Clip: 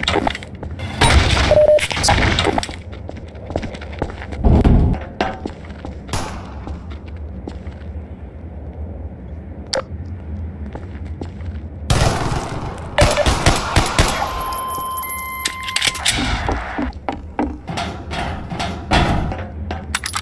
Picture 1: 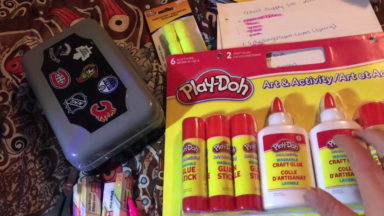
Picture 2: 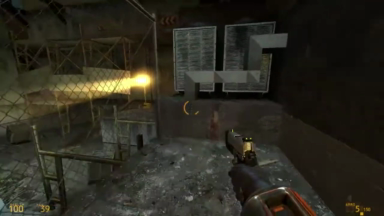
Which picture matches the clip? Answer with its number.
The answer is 2